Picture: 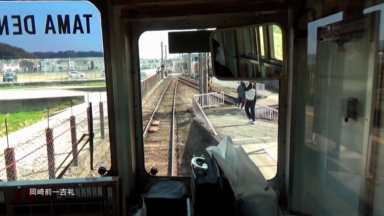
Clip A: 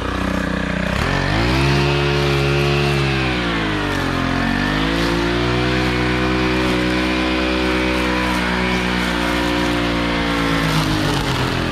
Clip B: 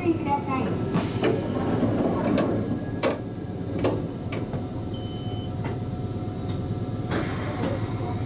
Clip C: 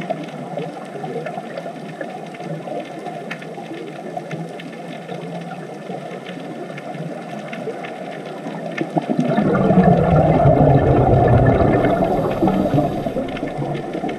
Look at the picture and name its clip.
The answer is B